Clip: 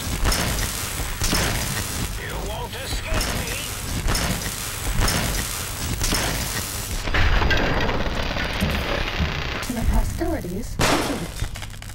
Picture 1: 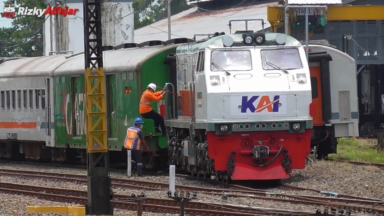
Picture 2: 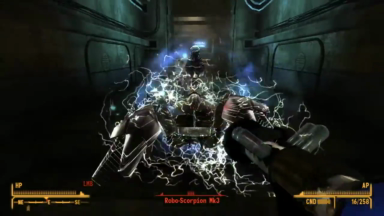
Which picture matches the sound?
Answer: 2